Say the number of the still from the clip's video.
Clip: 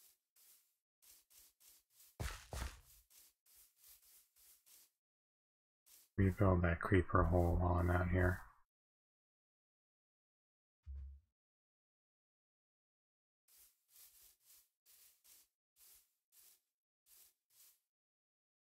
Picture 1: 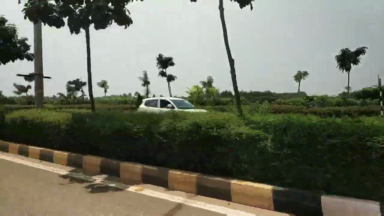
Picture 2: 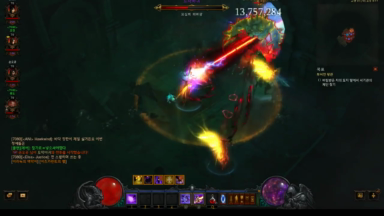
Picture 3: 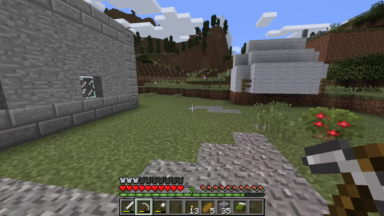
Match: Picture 3